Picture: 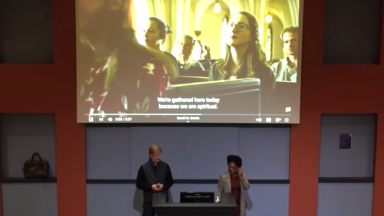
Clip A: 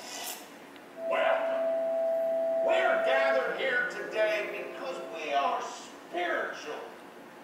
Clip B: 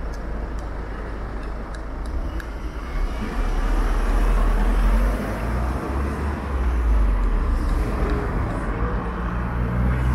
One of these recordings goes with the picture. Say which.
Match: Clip A